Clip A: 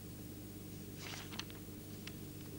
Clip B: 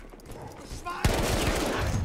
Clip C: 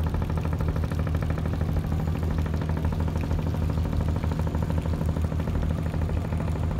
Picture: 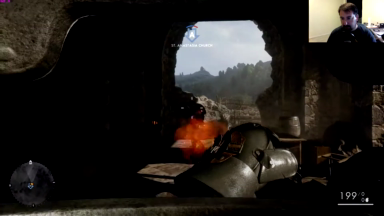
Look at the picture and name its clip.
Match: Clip B